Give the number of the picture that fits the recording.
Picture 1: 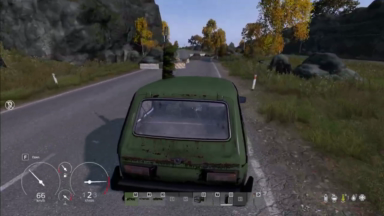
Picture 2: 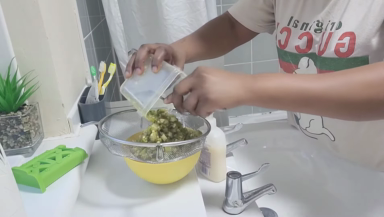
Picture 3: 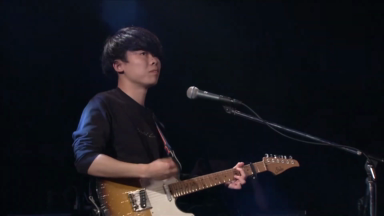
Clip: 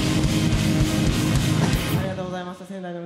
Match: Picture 3